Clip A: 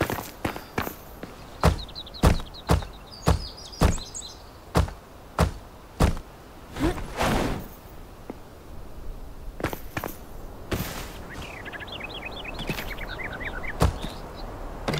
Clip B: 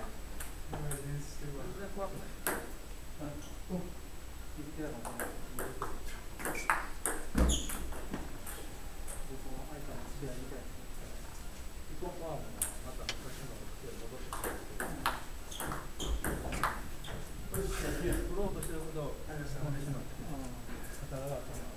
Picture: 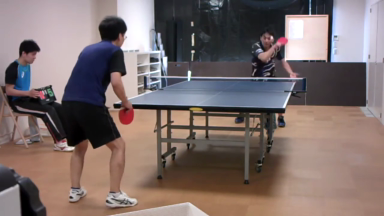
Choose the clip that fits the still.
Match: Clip B